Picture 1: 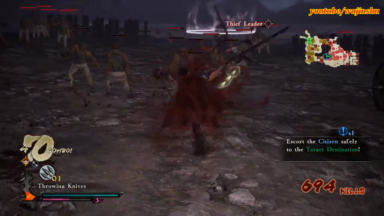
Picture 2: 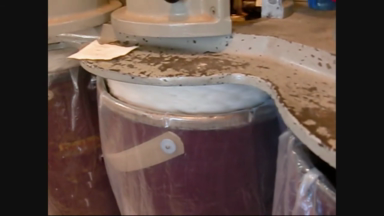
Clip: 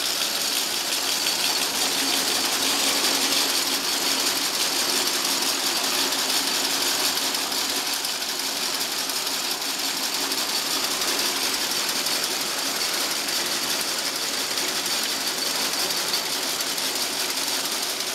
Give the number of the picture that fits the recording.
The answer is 2